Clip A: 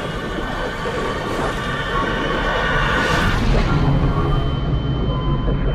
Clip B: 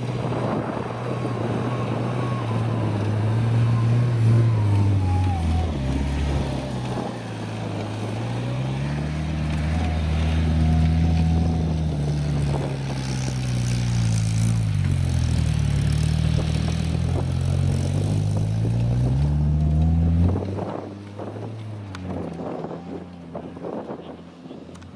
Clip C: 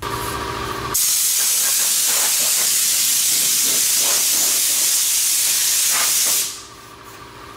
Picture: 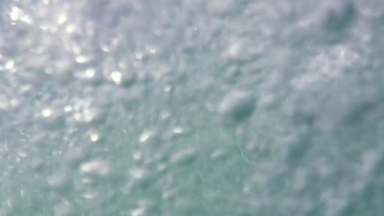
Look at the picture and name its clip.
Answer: A